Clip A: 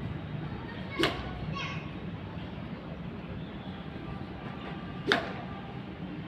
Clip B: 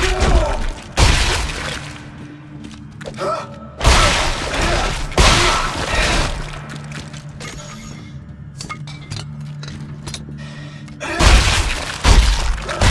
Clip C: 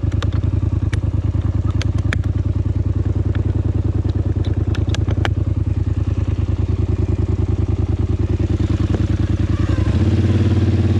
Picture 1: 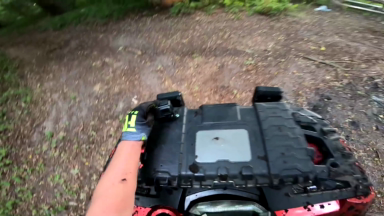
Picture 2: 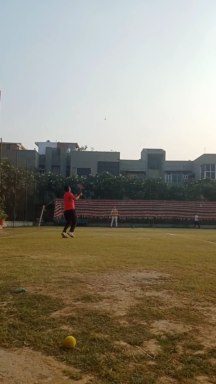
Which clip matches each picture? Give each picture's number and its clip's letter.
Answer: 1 C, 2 A